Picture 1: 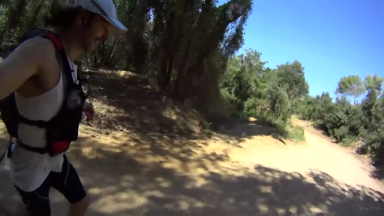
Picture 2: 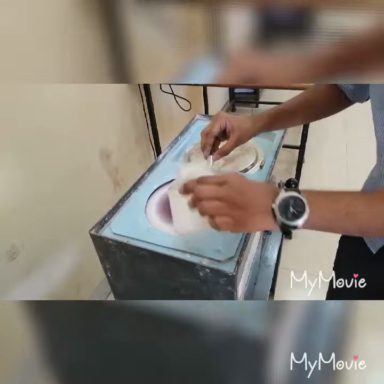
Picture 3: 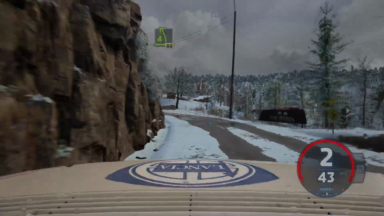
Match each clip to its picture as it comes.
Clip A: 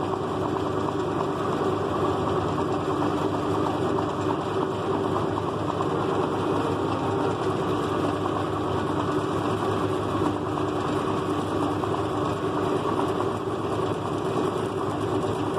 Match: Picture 2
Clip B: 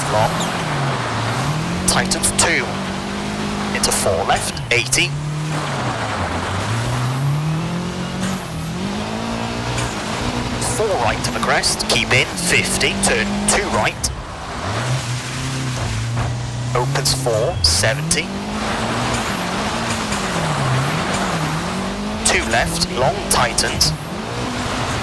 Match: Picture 3